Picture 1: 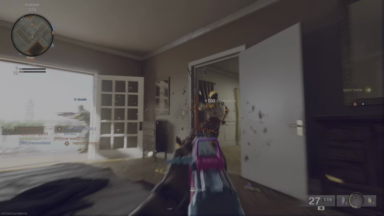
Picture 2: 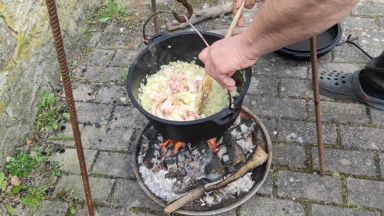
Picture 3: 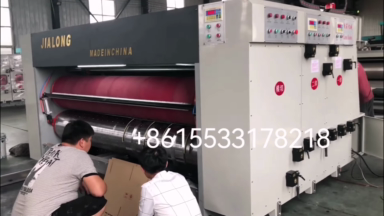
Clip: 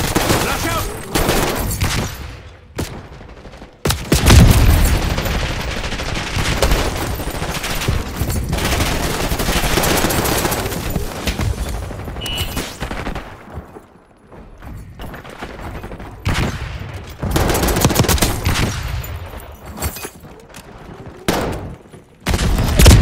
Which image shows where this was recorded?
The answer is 1